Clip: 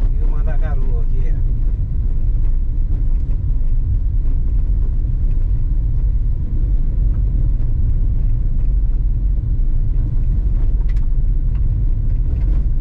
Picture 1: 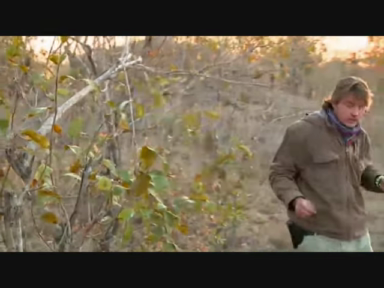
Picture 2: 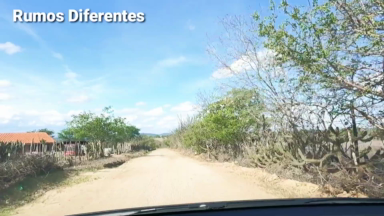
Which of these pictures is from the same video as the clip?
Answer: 2